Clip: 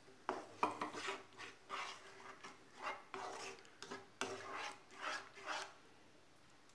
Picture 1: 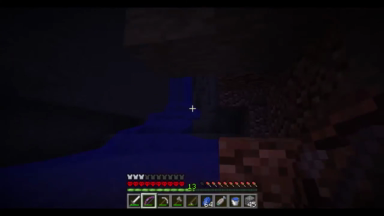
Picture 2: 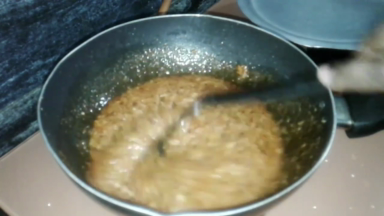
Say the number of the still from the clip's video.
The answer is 2